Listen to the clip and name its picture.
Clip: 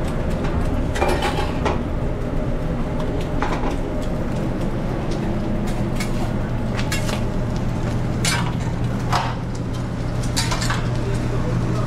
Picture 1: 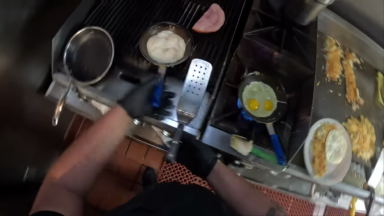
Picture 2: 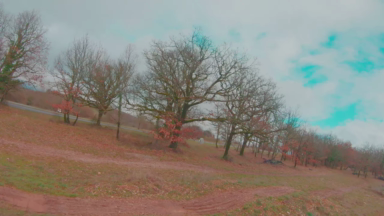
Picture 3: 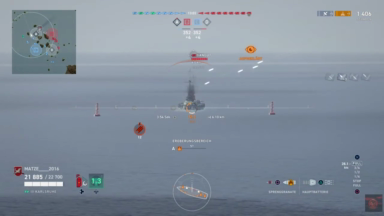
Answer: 1